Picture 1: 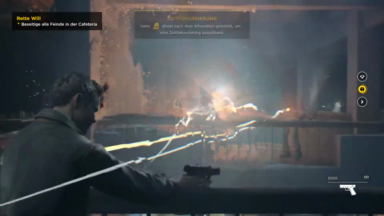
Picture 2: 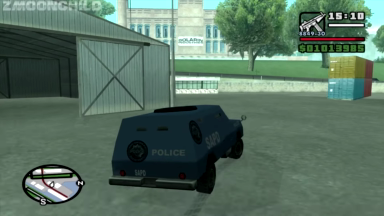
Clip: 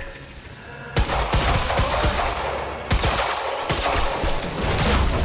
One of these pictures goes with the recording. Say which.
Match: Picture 1